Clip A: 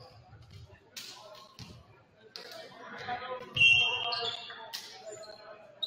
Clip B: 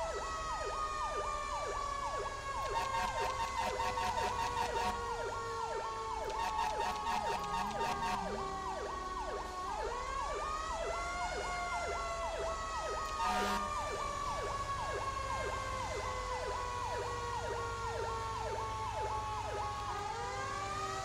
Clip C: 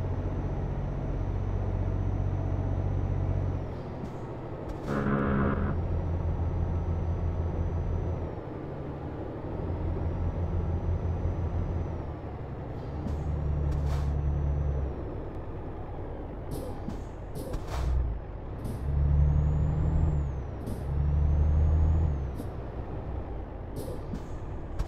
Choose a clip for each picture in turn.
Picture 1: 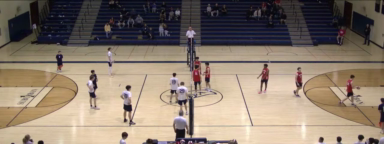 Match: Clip A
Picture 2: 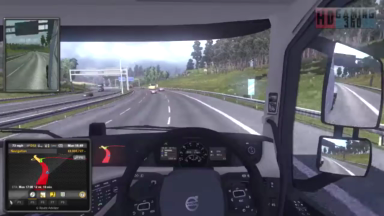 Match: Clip C